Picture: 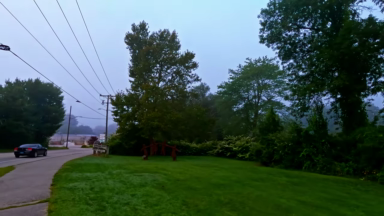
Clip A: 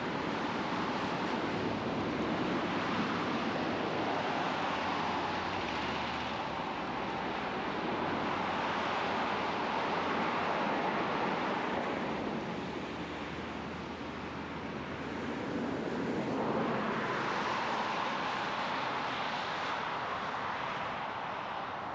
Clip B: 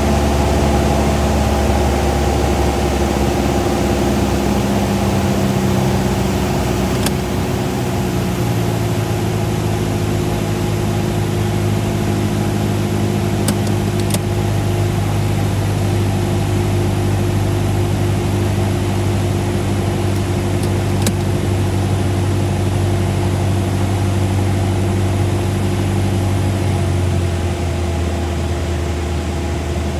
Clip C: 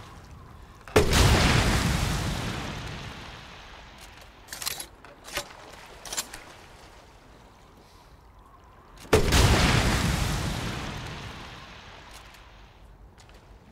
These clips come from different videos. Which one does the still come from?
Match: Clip A